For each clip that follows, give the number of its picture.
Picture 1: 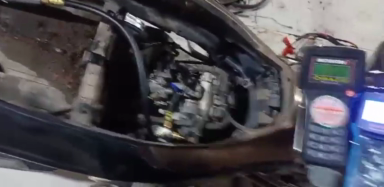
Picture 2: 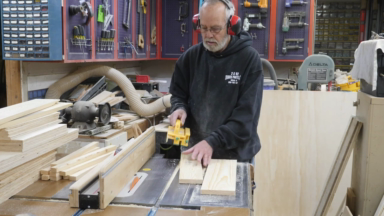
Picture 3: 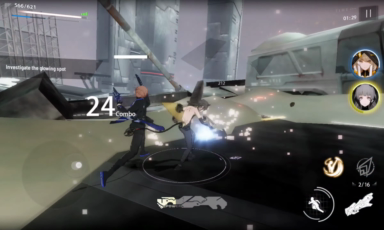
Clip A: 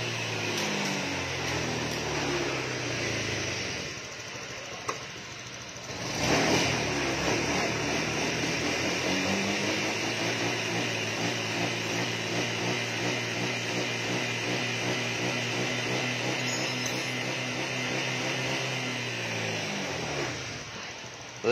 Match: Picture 1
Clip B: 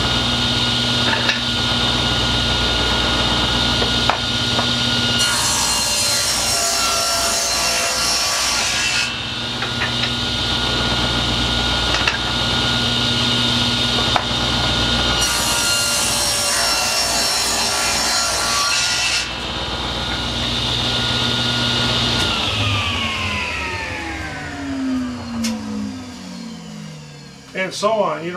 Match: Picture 2